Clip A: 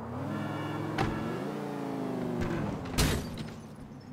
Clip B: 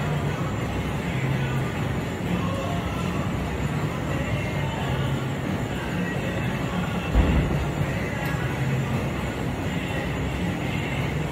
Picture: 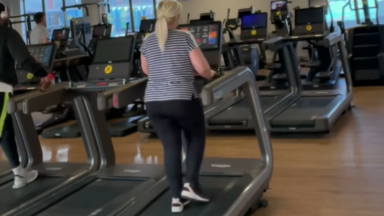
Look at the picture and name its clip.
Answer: B